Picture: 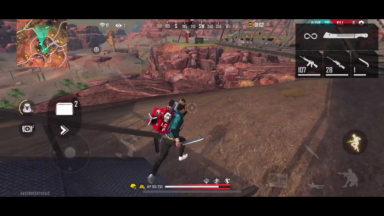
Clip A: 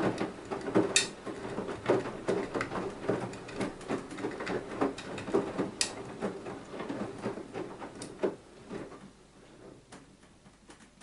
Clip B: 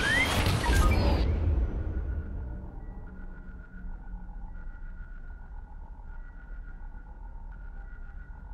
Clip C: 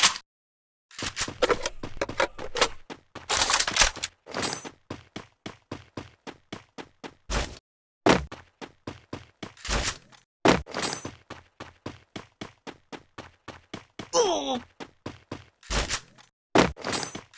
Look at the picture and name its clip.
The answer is C